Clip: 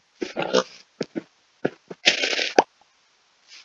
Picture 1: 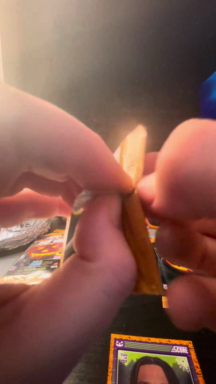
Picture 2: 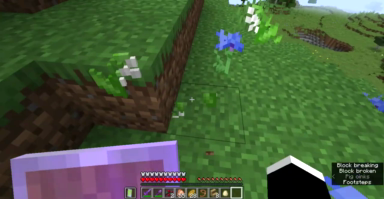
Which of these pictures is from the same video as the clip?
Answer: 2